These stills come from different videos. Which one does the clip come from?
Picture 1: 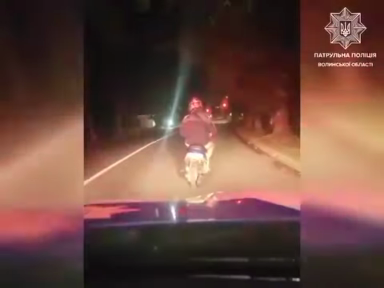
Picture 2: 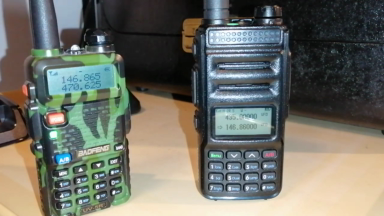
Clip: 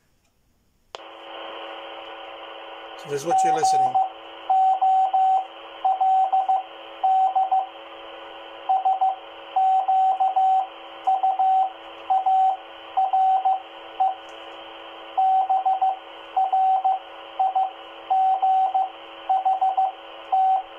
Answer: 2